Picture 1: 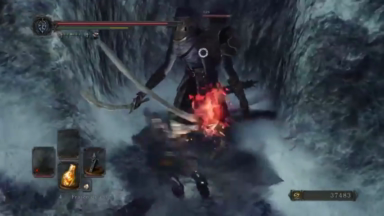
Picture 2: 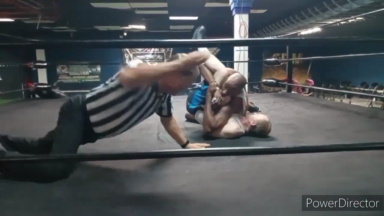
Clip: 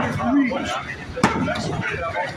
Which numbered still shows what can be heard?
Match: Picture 2